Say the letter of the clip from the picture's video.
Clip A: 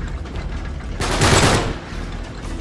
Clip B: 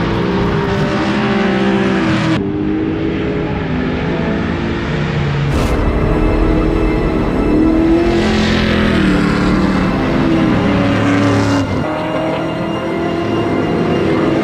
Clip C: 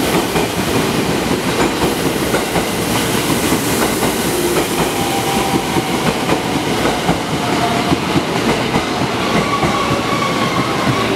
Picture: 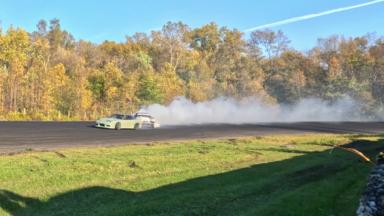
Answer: B